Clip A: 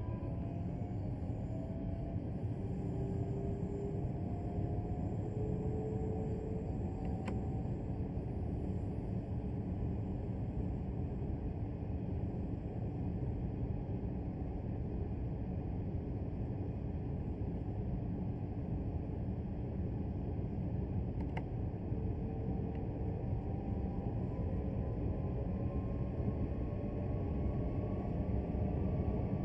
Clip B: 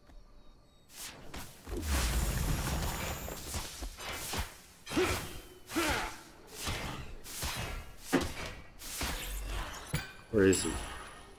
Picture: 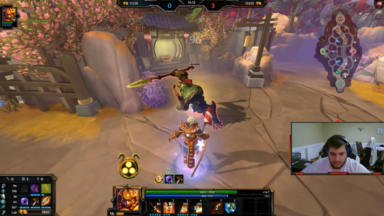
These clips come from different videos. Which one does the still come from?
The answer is B